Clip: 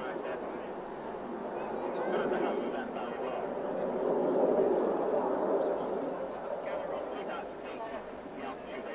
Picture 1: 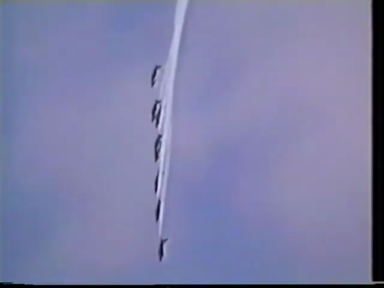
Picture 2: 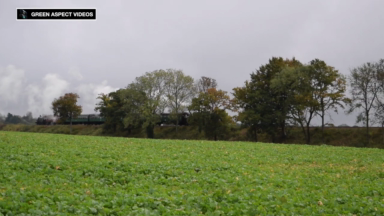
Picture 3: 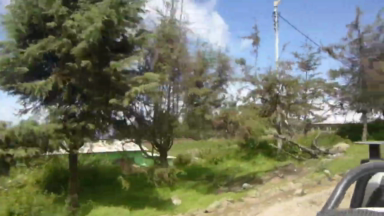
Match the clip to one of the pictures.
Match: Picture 1